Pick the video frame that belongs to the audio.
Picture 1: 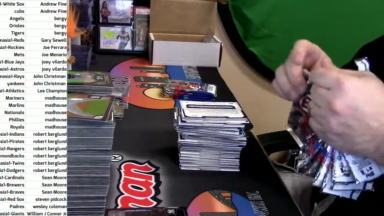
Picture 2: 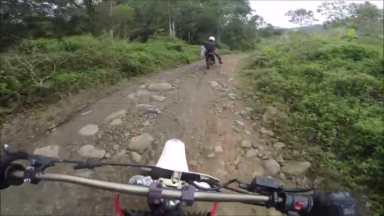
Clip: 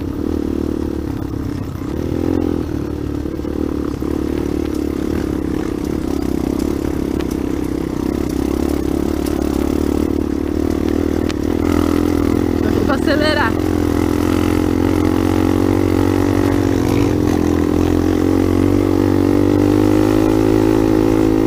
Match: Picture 2